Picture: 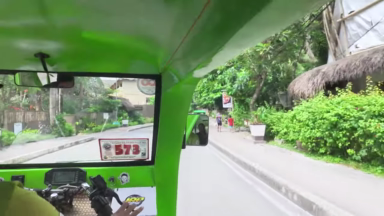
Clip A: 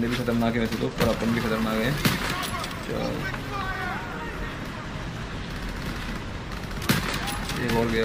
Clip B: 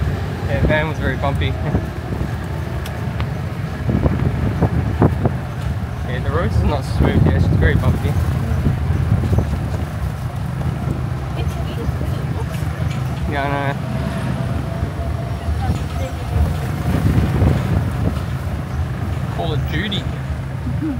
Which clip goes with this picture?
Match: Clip B